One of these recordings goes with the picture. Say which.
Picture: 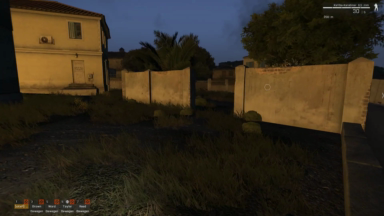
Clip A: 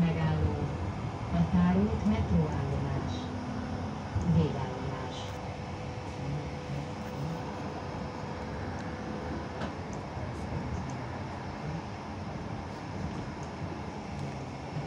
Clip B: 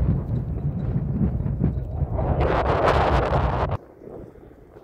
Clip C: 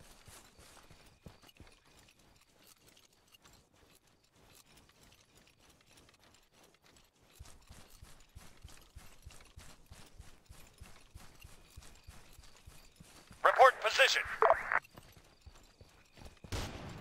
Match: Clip C